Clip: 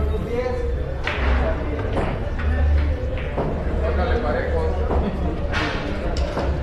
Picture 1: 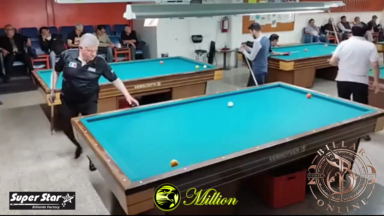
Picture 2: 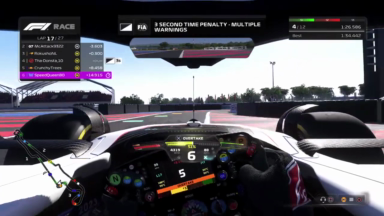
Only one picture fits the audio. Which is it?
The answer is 1